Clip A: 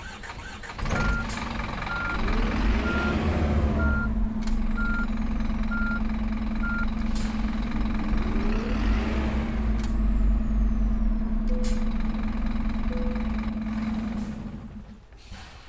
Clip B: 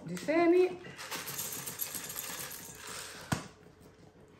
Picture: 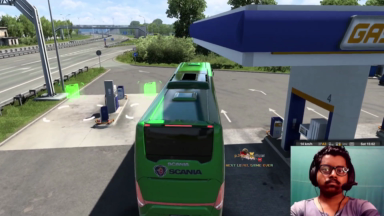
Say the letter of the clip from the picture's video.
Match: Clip A